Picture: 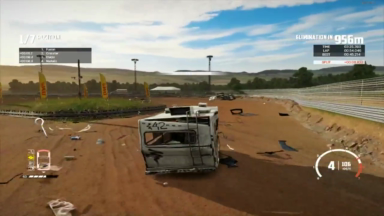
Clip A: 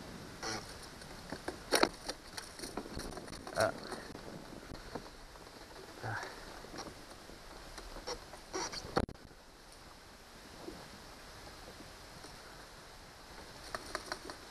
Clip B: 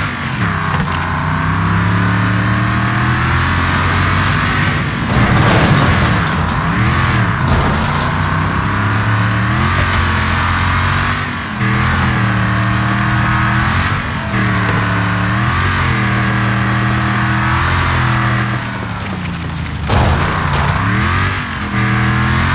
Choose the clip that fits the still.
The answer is B